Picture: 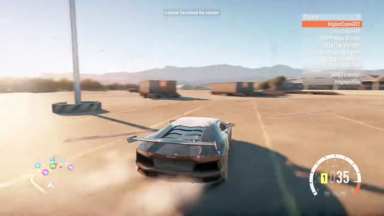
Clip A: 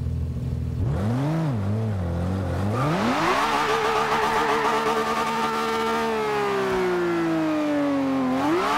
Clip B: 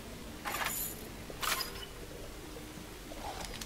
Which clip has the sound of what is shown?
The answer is A